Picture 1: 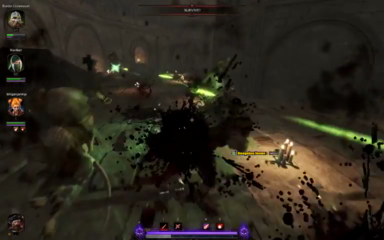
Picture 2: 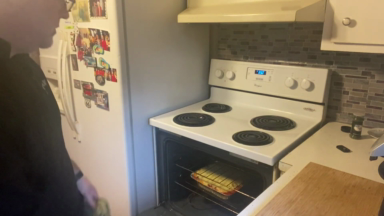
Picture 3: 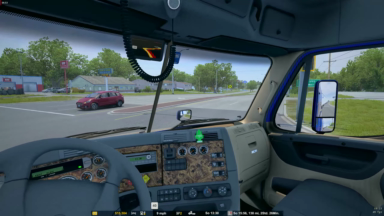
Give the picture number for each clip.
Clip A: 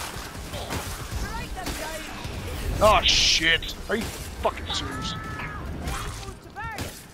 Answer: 1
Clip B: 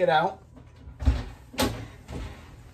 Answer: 2